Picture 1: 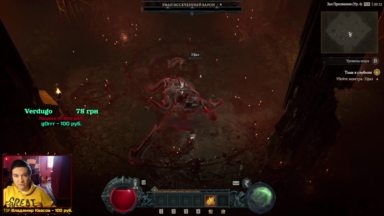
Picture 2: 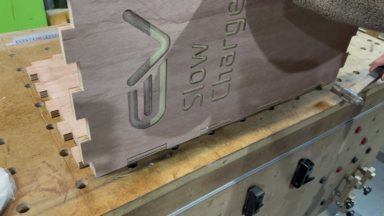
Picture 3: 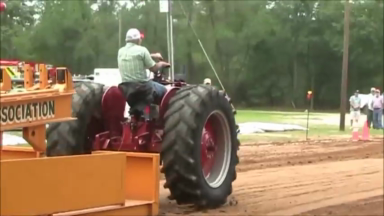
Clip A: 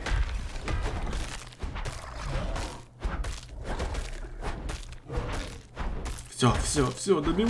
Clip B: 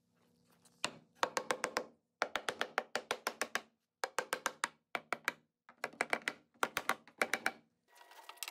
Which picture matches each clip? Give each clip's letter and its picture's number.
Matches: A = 1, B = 2